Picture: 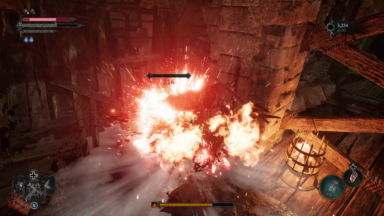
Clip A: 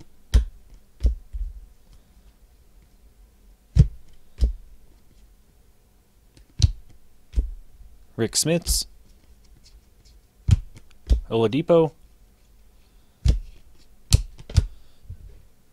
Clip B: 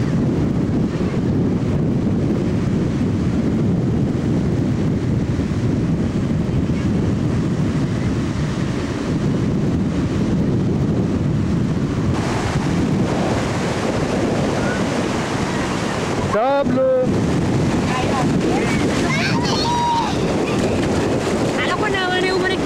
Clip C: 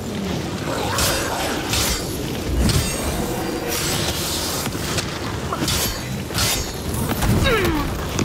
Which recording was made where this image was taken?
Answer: C